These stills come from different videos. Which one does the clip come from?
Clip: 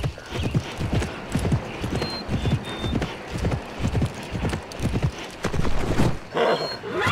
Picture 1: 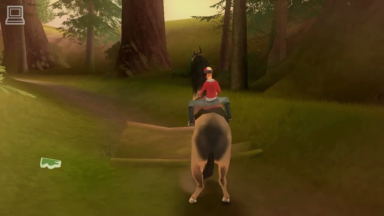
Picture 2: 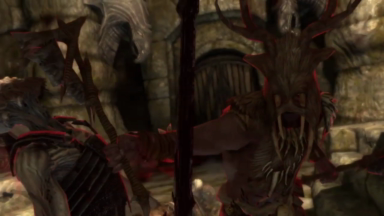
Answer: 1